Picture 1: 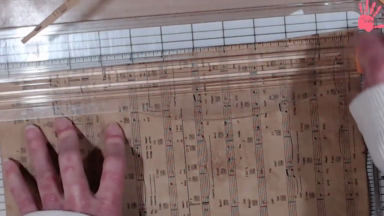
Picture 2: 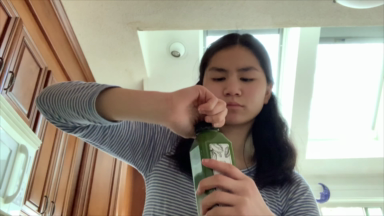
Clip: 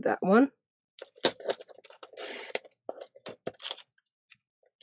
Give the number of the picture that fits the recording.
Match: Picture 1